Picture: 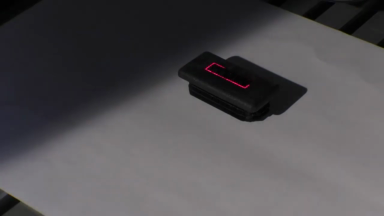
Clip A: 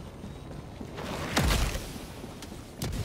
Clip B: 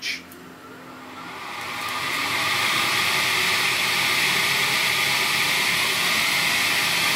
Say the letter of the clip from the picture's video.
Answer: B